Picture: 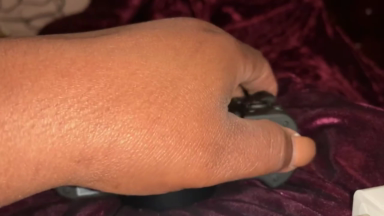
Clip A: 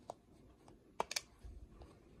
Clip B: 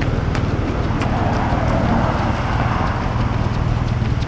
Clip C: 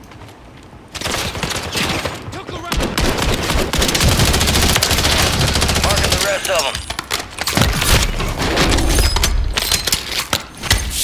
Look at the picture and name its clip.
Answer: A